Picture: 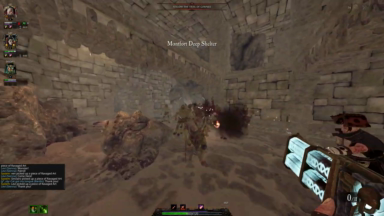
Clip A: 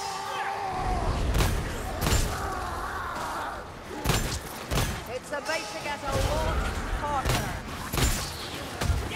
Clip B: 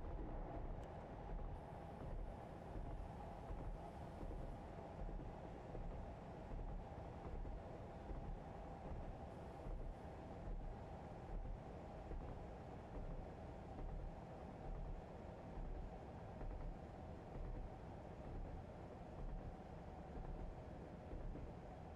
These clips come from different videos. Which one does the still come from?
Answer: A